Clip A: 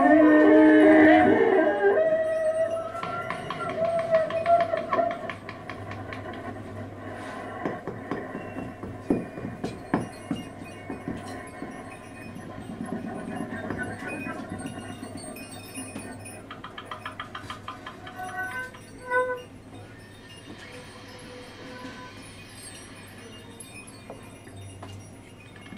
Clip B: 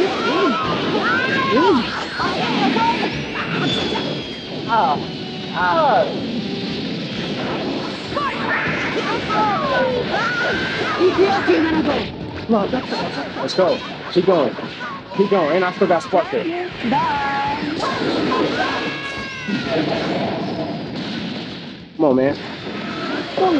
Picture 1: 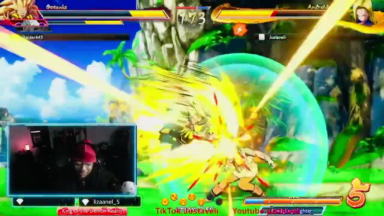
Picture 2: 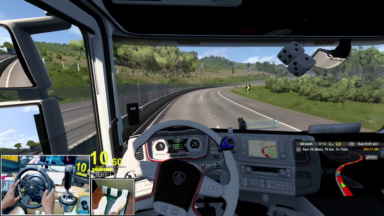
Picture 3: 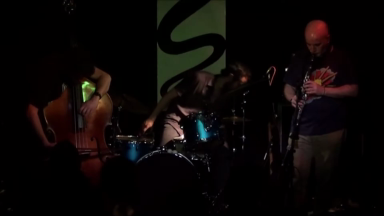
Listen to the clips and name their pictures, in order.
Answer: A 3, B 1